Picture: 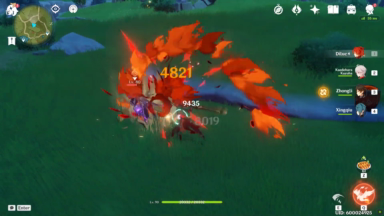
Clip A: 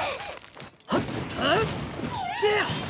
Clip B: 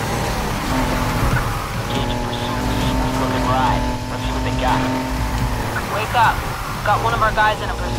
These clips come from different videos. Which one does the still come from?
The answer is A